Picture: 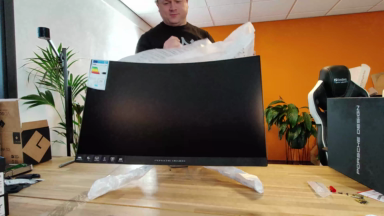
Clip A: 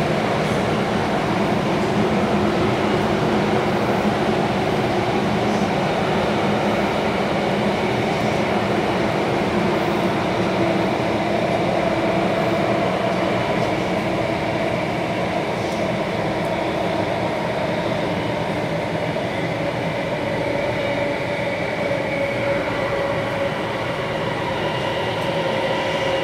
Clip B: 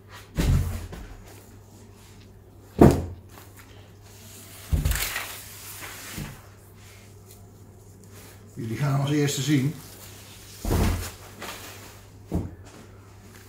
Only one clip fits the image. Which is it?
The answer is B